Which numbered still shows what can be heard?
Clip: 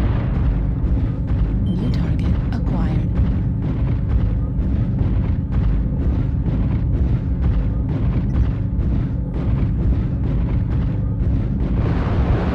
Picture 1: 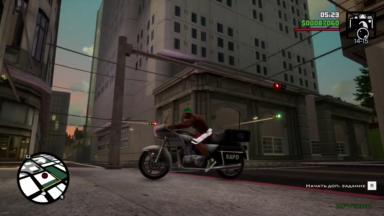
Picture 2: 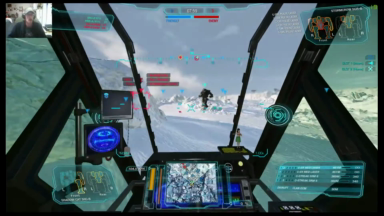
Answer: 2